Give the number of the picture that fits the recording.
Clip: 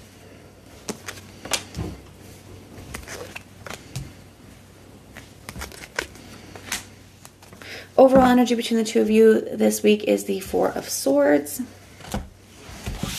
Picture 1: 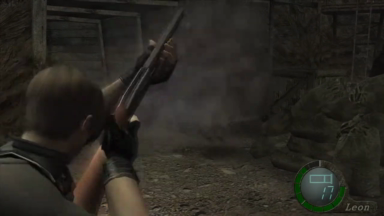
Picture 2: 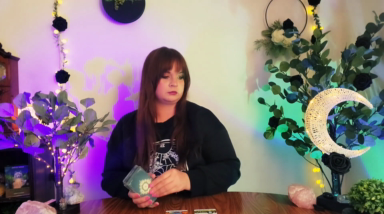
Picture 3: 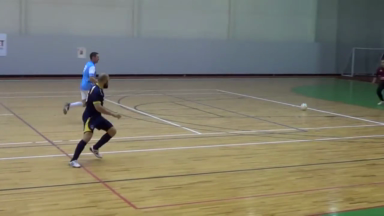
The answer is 2